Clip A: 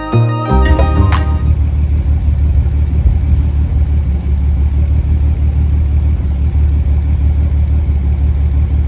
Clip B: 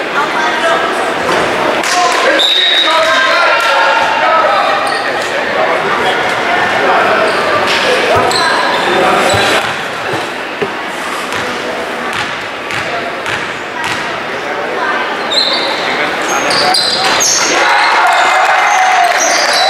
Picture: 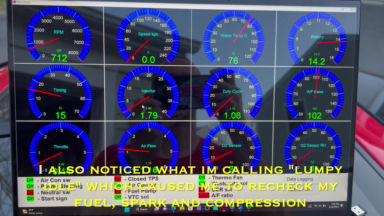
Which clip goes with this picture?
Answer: A